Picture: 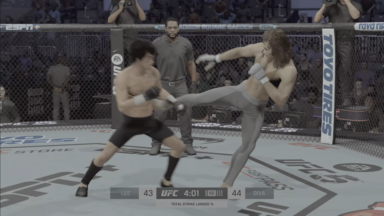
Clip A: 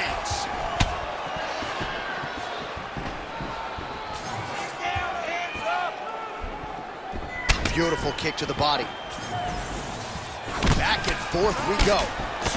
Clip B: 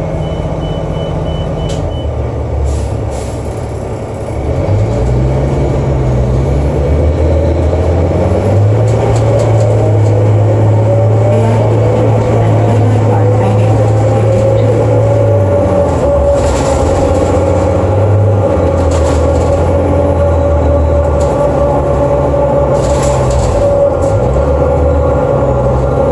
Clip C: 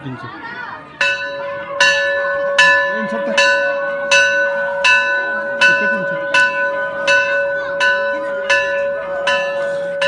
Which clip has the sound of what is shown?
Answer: A